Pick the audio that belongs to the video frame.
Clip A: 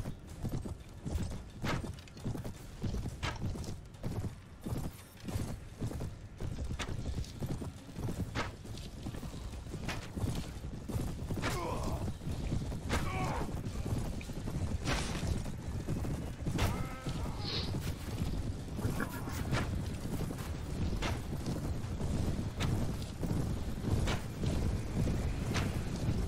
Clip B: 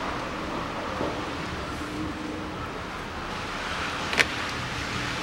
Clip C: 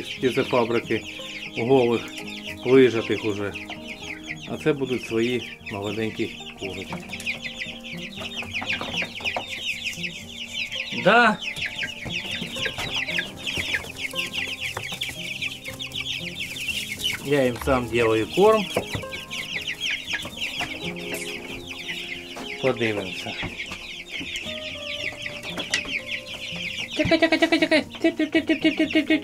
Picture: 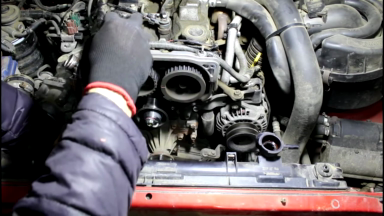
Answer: B